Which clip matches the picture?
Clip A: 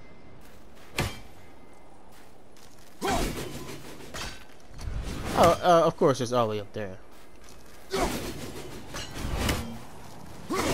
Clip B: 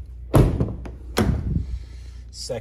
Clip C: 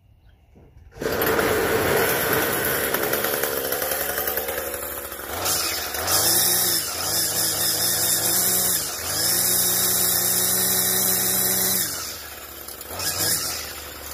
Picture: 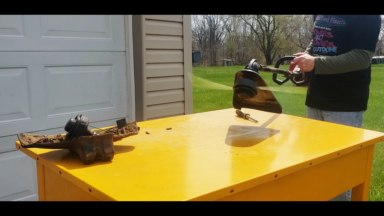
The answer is C